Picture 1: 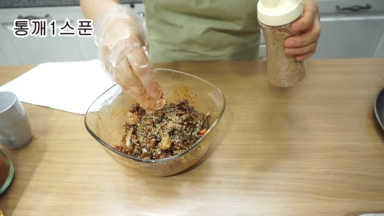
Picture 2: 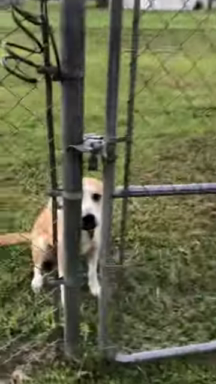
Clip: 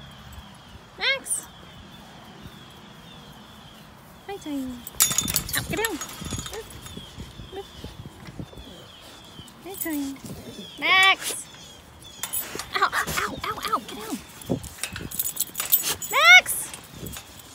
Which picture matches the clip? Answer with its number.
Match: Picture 2